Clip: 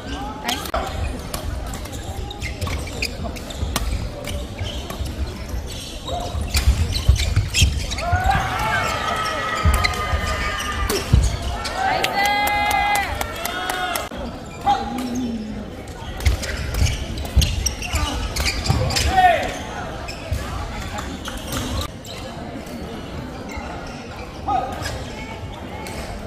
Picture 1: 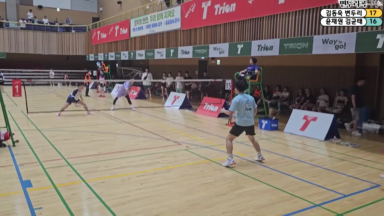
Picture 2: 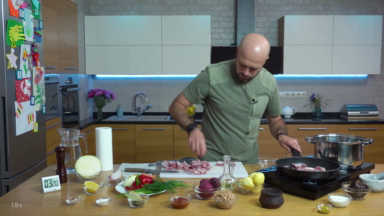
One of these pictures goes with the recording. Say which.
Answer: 1